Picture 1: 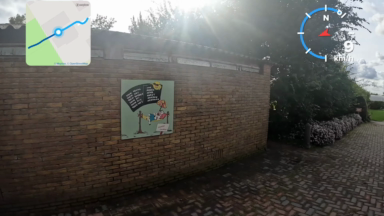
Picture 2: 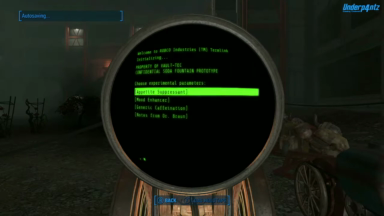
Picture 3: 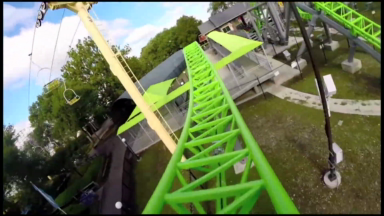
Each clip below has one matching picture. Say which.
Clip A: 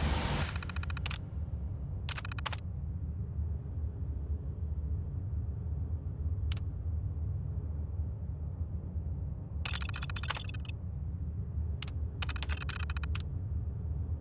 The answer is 2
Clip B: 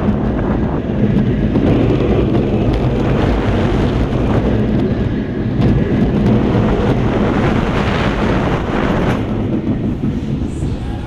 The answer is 3